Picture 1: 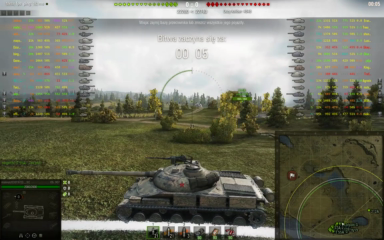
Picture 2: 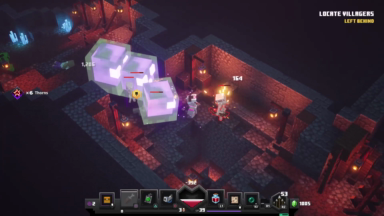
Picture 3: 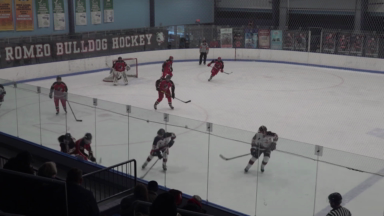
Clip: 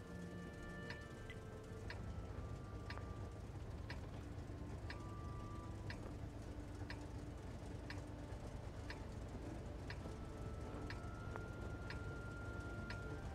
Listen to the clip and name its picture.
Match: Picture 1